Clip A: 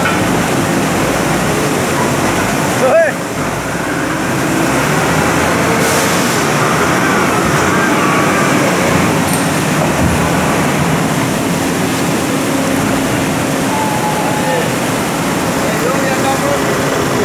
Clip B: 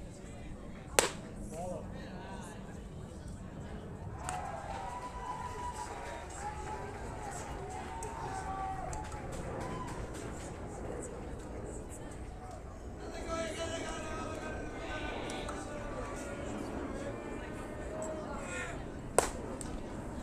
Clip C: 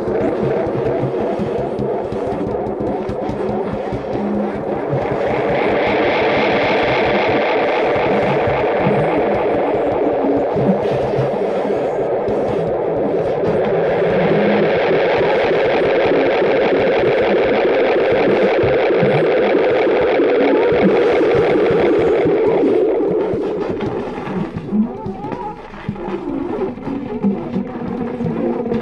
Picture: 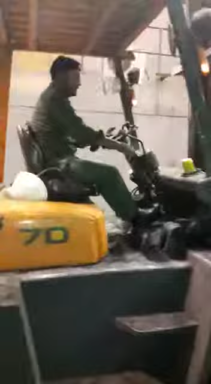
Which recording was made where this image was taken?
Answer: A